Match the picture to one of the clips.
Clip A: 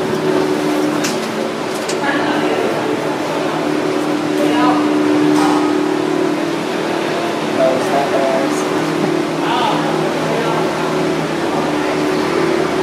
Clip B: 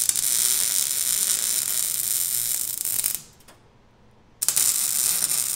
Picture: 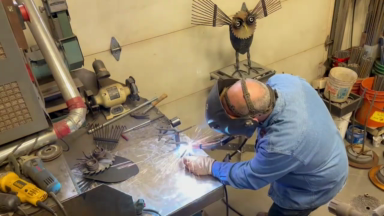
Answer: B